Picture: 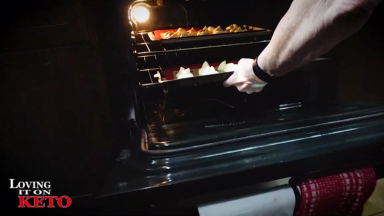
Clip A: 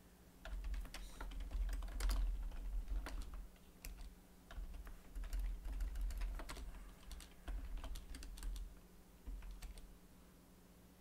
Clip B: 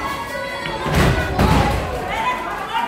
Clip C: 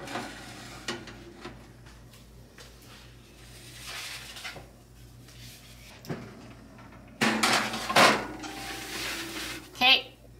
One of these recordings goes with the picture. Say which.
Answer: C